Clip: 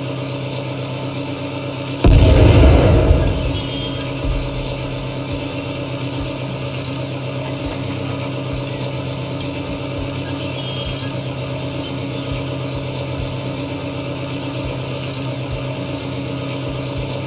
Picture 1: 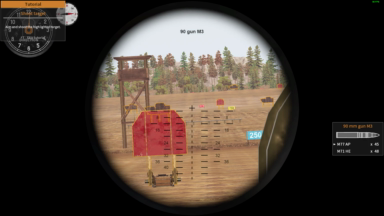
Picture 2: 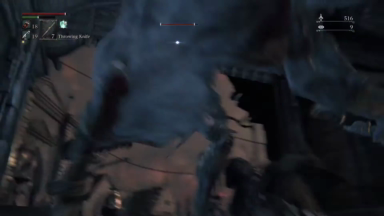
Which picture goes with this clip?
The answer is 1